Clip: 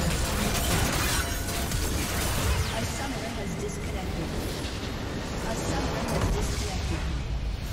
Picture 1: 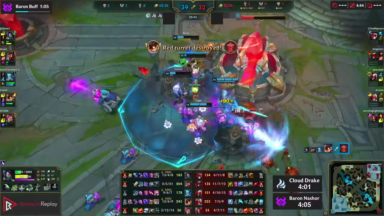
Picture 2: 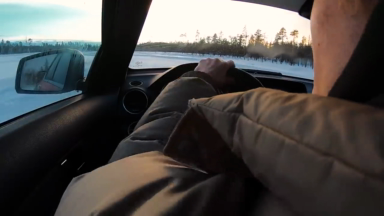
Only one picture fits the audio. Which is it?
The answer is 1